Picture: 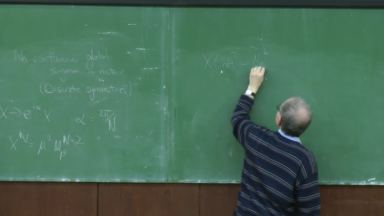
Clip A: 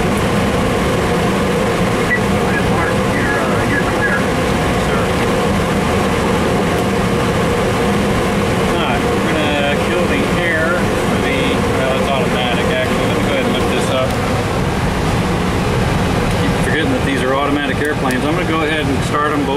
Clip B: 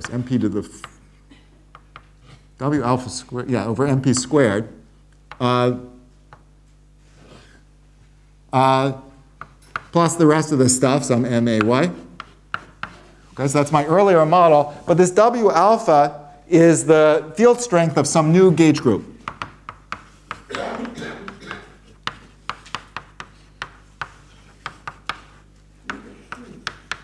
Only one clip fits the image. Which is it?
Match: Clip B